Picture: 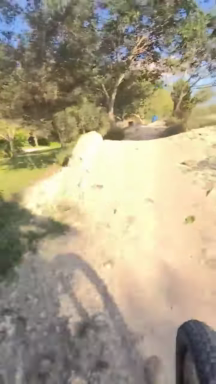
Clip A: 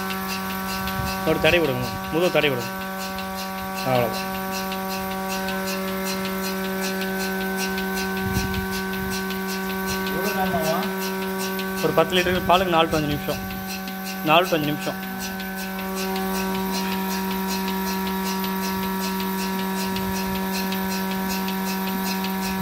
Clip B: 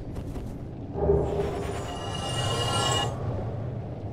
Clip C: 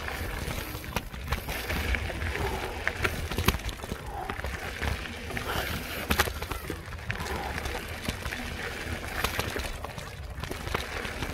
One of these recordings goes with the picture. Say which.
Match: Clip C